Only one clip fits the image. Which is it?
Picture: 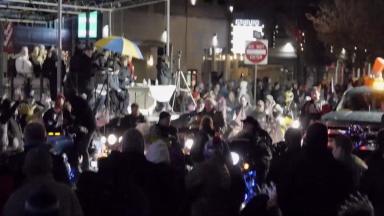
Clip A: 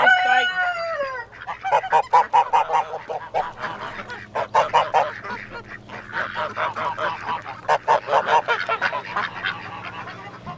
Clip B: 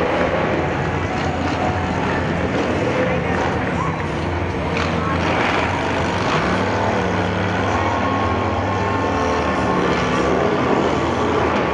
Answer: B